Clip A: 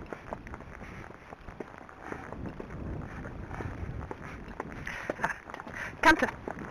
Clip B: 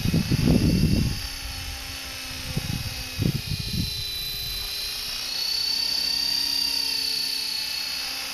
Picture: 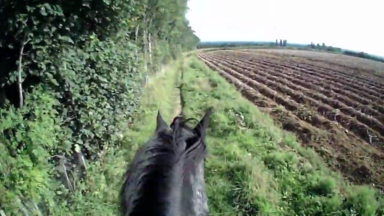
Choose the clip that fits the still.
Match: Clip A